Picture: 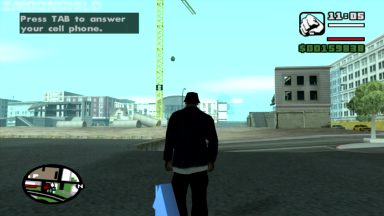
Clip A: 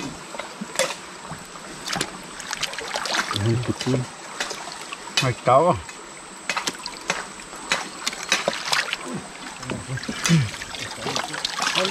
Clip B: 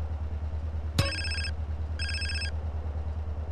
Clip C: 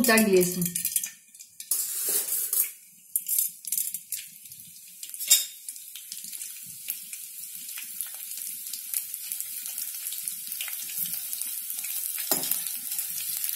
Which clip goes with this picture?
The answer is B